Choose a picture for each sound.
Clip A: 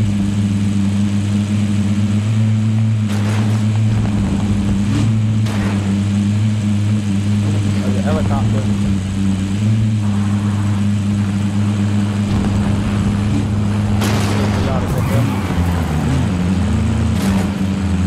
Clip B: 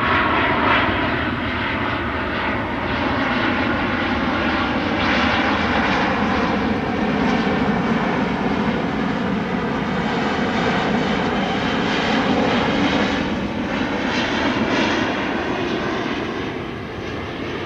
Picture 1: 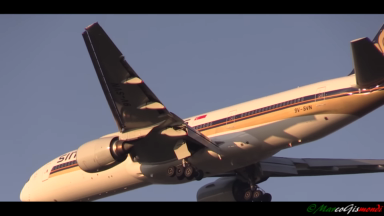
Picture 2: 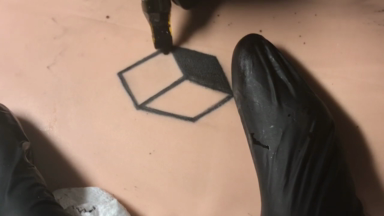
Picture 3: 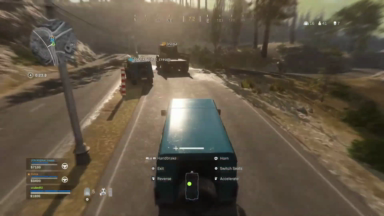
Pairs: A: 3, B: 1